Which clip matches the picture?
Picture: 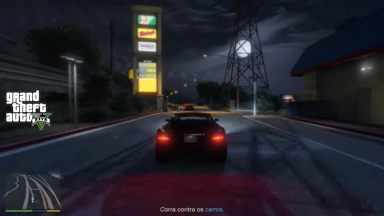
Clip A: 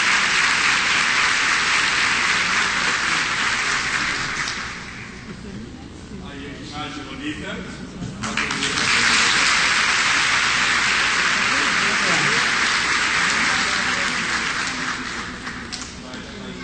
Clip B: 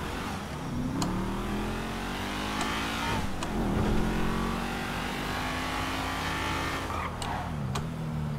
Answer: B